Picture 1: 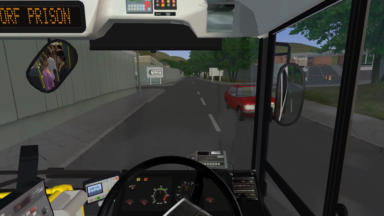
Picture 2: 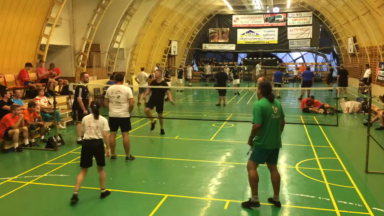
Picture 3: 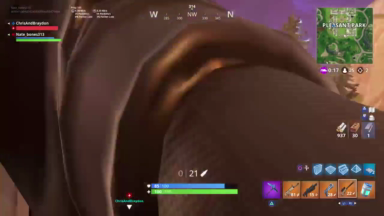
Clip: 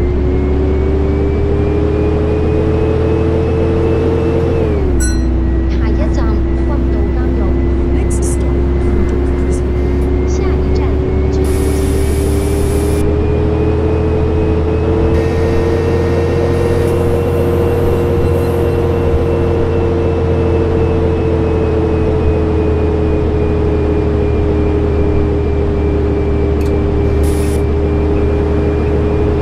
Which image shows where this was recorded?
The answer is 1